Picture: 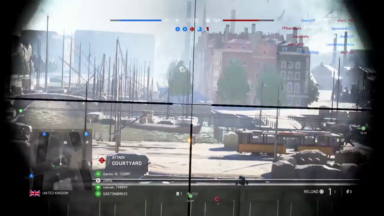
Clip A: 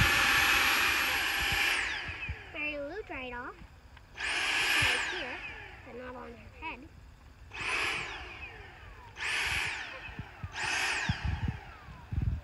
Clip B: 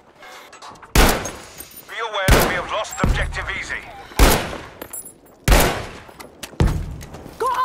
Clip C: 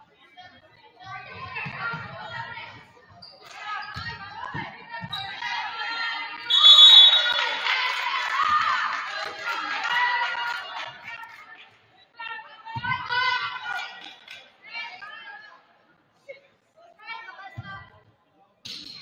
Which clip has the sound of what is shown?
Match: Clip B